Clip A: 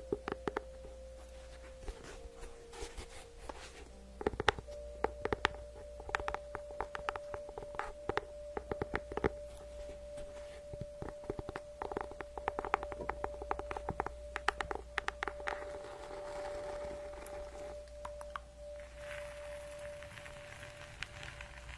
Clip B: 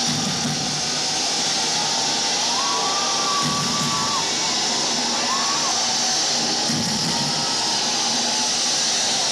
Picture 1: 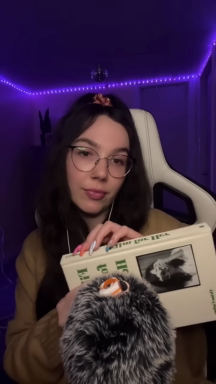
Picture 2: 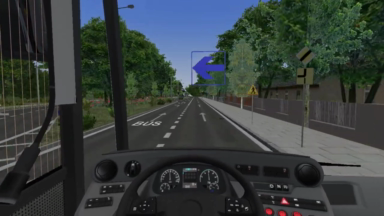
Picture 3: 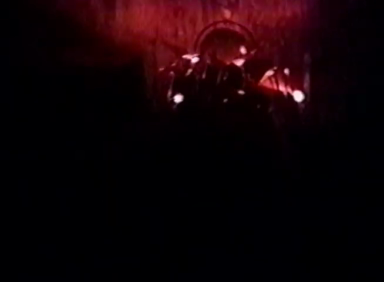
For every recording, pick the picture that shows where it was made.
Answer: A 1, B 3